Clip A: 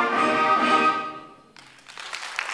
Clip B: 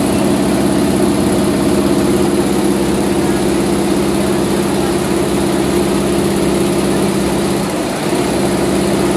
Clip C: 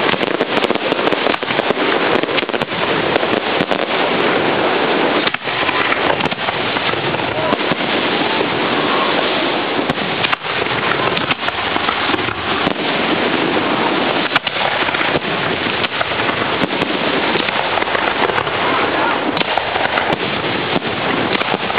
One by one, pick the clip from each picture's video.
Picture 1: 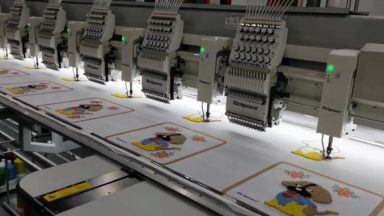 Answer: B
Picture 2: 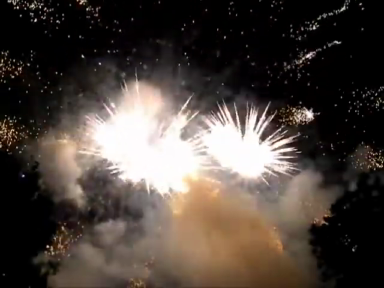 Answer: C